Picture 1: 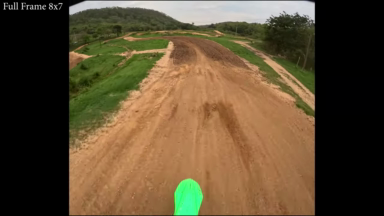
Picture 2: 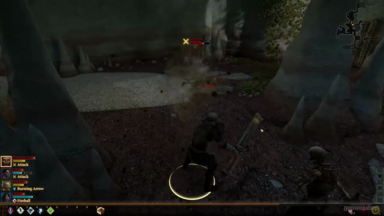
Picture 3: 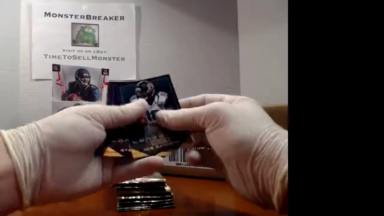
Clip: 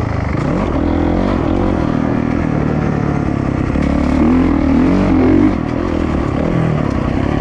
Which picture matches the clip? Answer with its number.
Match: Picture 1